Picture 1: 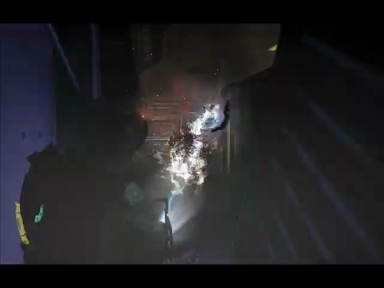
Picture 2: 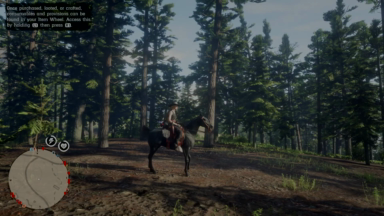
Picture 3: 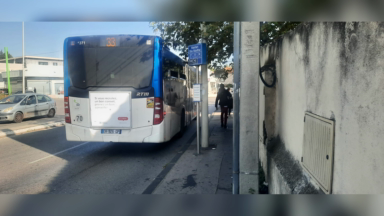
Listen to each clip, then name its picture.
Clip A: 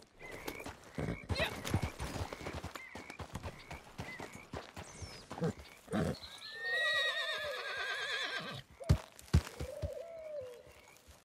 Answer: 2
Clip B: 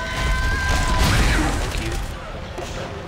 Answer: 1